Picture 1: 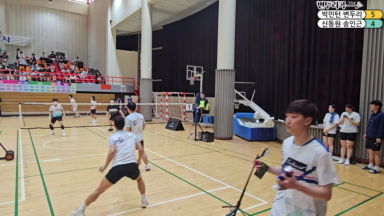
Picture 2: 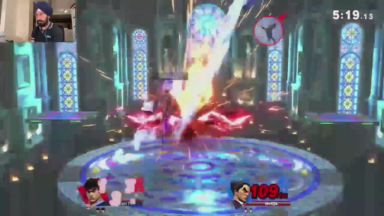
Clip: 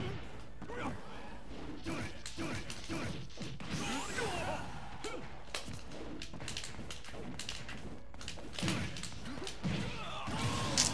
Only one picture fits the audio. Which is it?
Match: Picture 2